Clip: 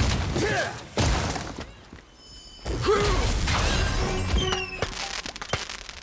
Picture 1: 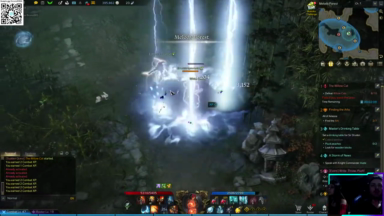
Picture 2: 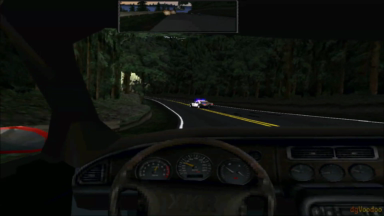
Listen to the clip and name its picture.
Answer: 1